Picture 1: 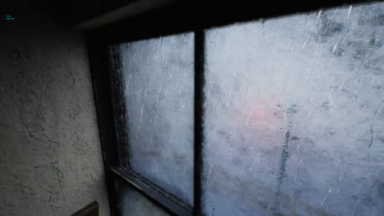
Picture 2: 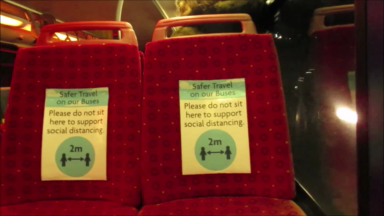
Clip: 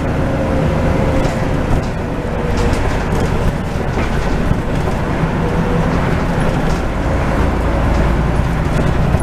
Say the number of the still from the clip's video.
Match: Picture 2